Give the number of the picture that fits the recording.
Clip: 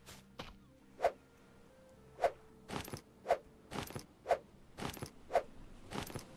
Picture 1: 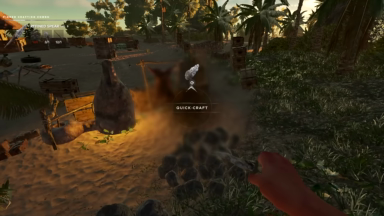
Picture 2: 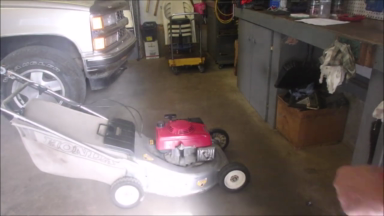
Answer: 1